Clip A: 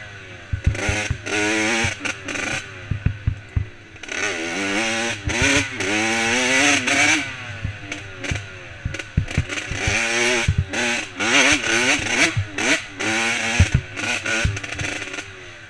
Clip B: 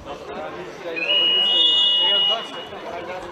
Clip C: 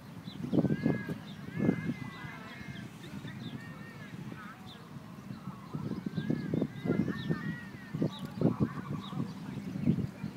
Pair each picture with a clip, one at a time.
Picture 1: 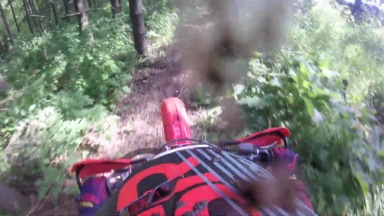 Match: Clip A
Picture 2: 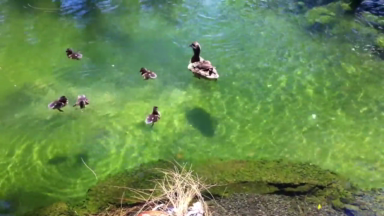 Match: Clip C